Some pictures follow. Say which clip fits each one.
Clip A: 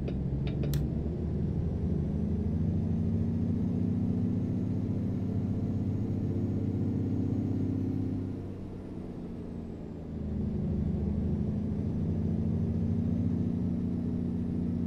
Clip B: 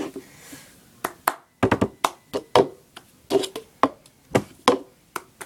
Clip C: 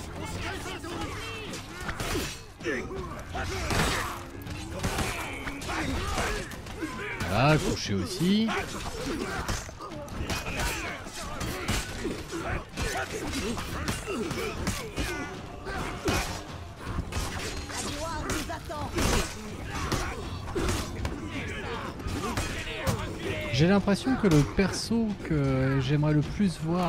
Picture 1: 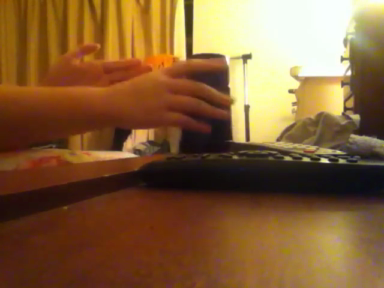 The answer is B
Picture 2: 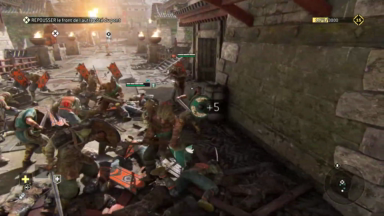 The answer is C